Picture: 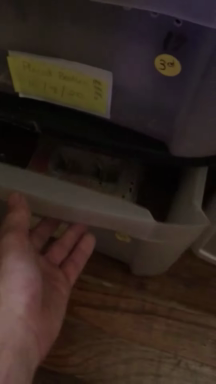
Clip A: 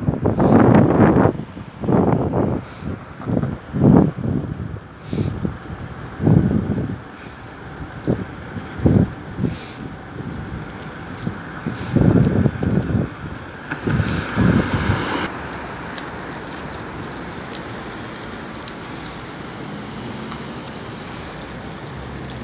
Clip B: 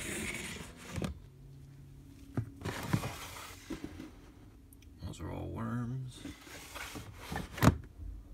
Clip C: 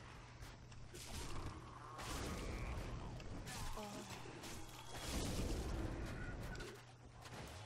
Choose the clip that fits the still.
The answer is B